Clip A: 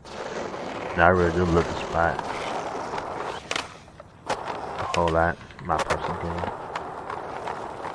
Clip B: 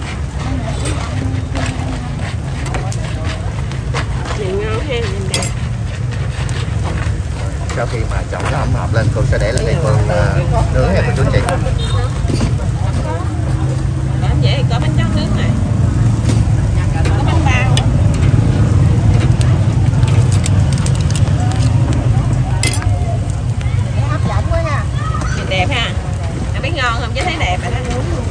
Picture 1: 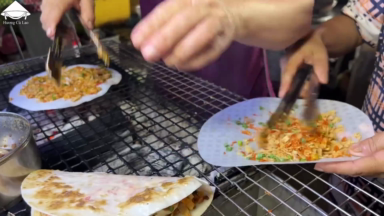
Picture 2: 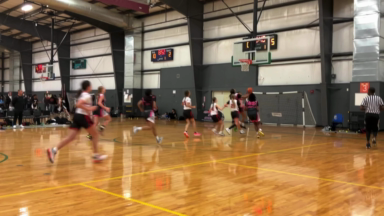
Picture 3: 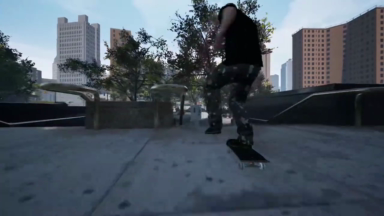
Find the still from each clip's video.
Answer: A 3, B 1